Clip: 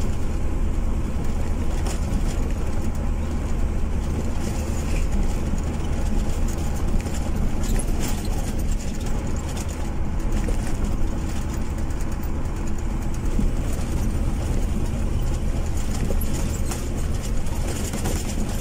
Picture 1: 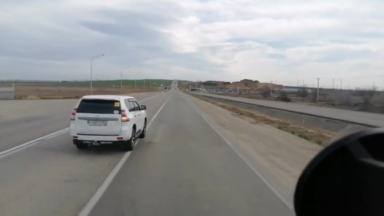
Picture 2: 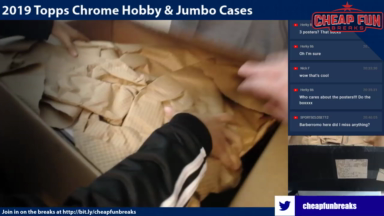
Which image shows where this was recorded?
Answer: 1